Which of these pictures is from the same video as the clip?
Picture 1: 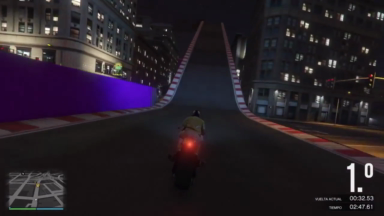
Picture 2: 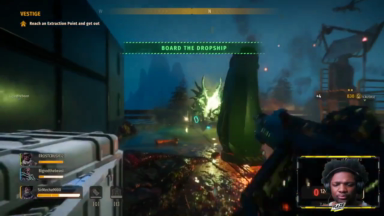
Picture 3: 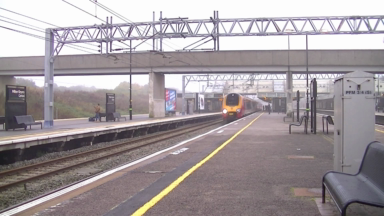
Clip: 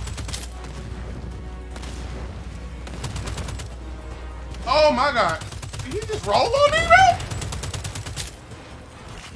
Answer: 2